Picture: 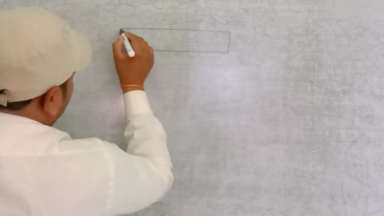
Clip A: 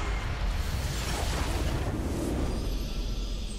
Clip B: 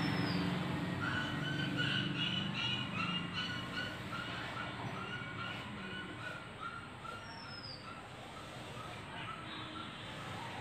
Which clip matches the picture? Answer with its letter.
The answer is B